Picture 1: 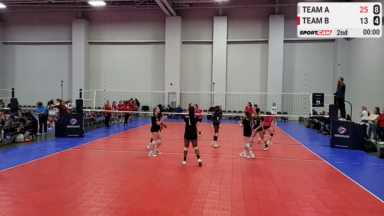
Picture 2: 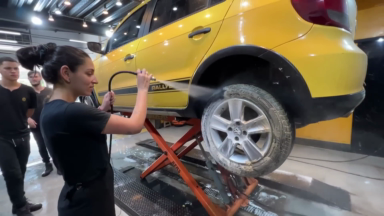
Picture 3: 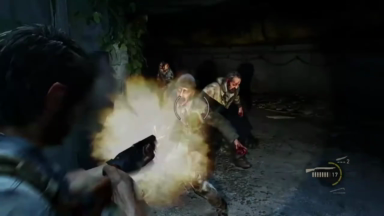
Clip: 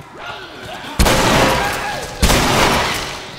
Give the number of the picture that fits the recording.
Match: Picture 3